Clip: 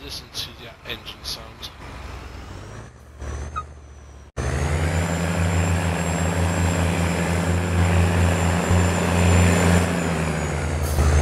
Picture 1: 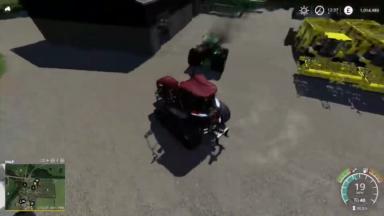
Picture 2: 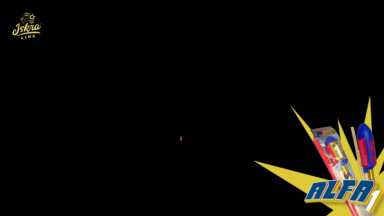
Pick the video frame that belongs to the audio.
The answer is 1